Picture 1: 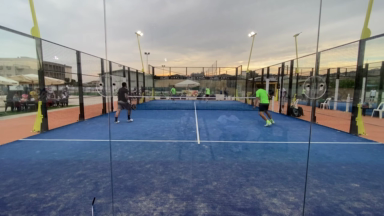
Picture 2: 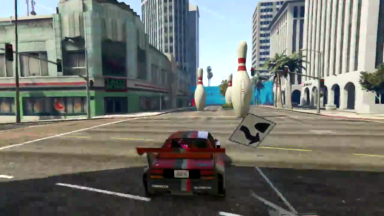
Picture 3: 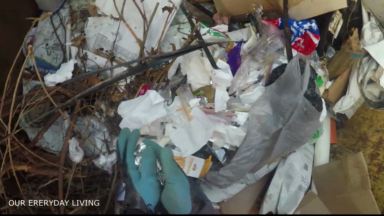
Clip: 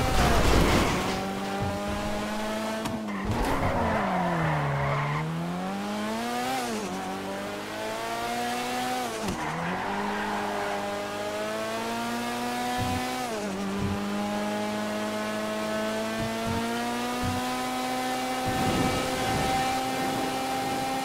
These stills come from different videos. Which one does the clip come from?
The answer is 2